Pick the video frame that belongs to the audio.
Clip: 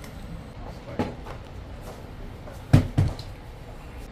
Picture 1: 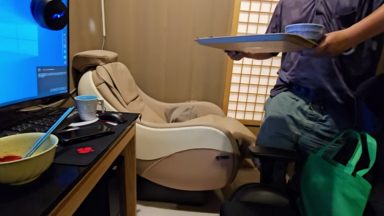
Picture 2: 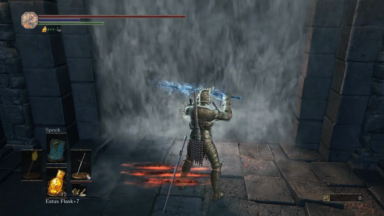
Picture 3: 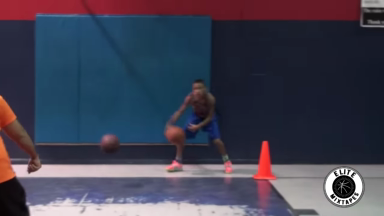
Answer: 1